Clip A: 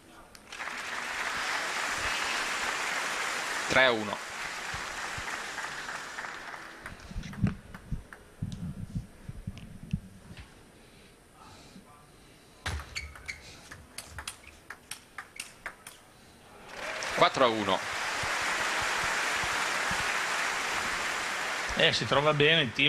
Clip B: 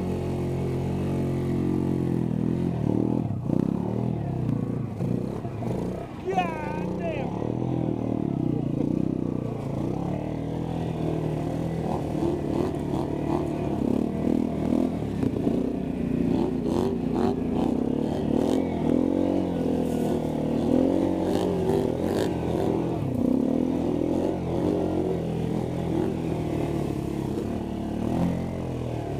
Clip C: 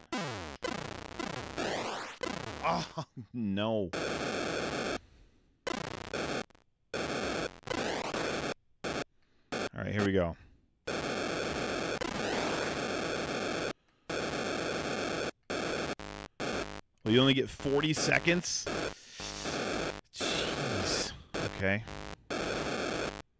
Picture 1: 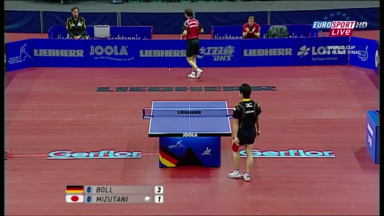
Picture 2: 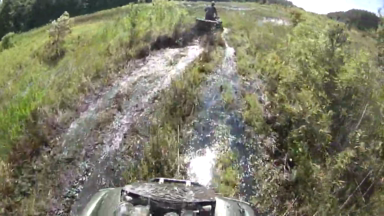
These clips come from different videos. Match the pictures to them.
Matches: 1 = A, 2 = B